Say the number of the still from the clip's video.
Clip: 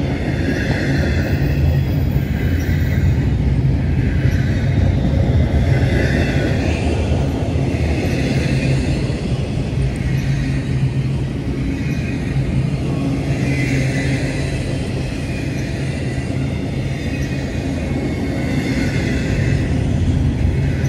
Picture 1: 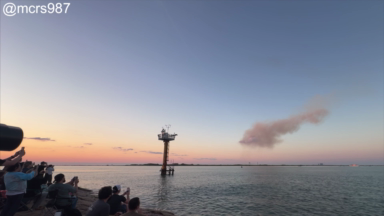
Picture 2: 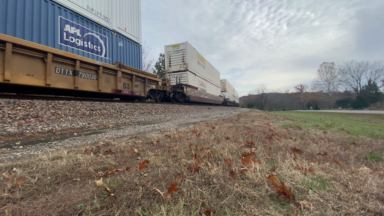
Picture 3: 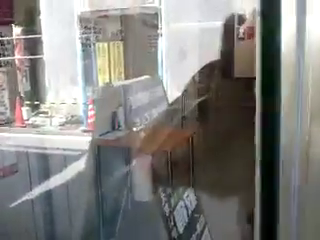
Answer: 2